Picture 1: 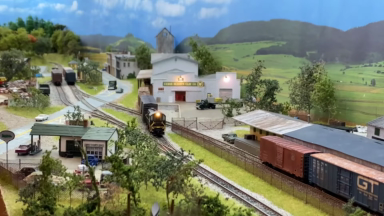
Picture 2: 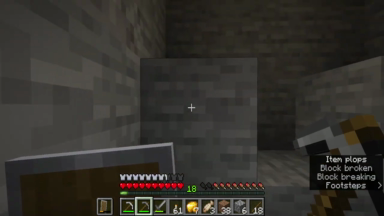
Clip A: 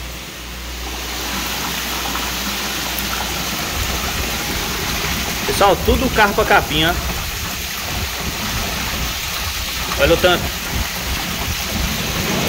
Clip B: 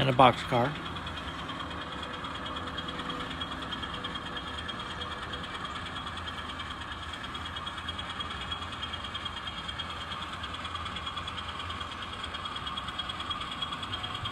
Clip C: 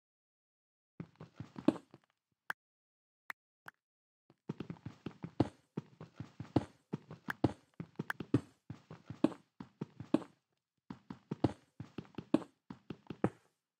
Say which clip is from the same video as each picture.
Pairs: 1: B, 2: C